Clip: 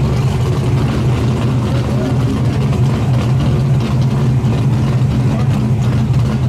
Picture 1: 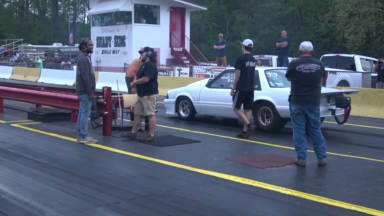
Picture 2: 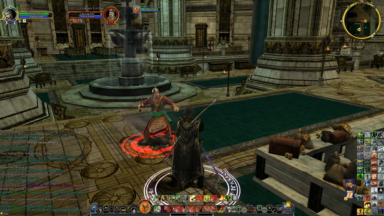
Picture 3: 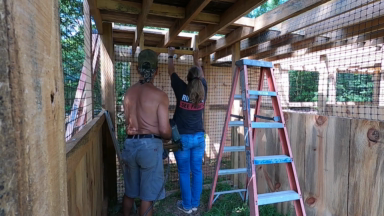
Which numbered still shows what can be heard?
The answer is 1